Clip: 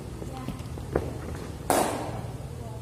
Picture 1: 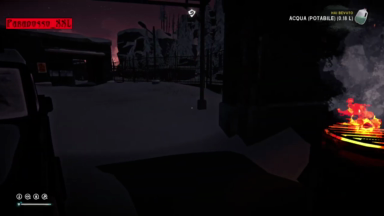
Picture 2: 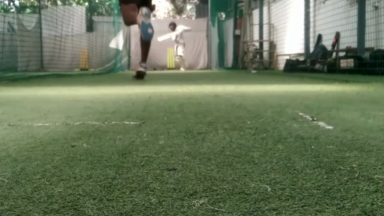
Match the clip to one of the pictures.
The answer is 2